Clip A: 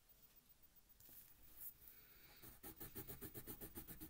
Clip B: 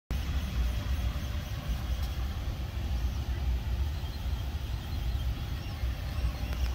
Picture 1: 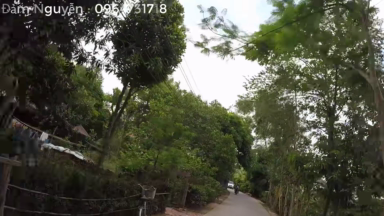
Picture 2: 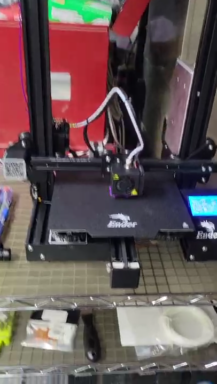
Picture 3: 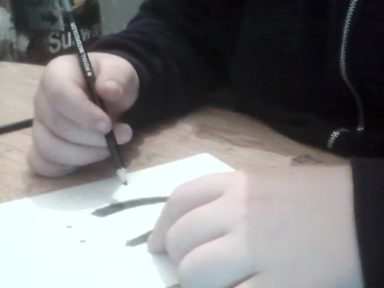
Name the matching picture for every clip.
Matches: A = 3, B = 2